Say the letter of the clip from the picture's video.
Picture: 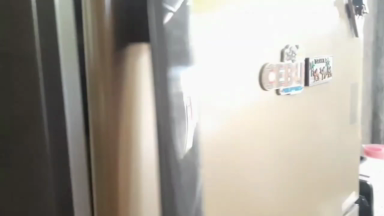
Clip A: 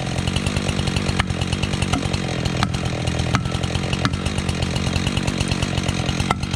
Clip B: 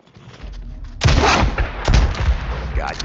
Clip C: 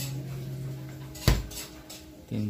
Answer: C